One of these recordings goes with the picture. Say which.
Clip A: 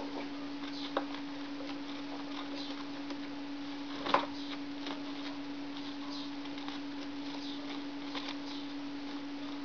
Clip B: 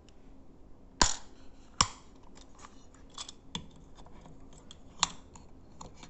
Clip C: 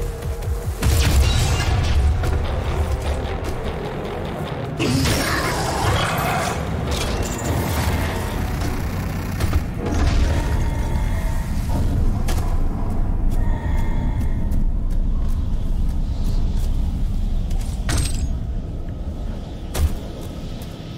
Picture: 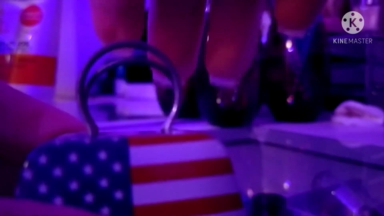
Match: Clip B